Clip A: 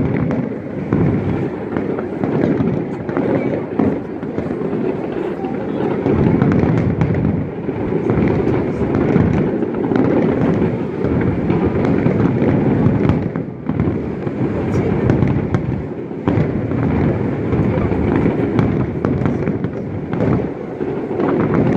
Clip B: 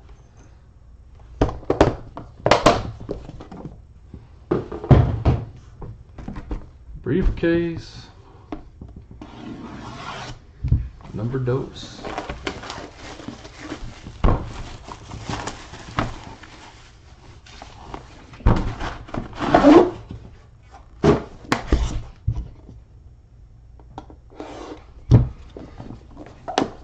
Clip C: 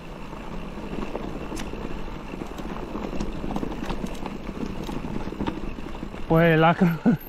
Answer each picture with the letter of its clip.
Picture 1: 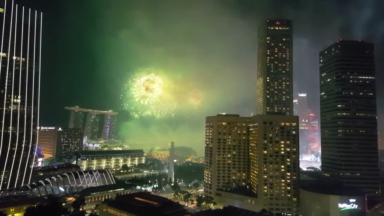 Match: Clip A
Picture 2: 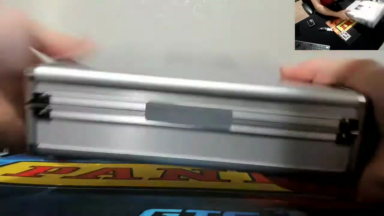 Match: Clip B